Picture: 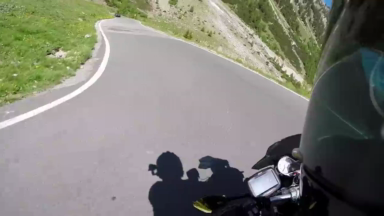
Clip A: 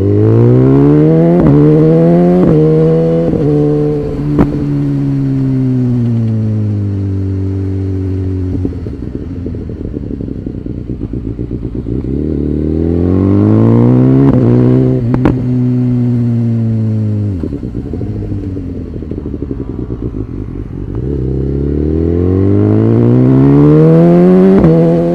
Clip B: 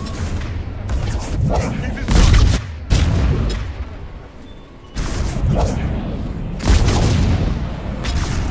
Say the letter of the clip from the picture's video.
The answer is A